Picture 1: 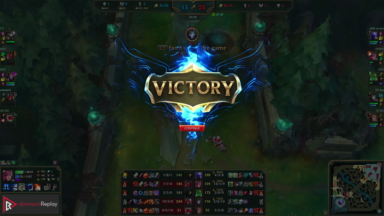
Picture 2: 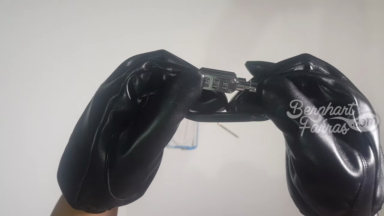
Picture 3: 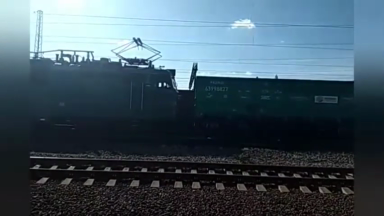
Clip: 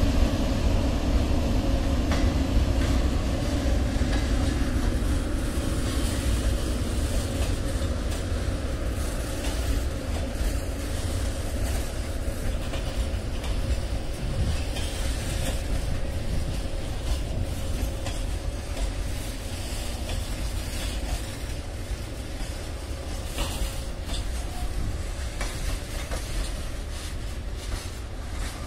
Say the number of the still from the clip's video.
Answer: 3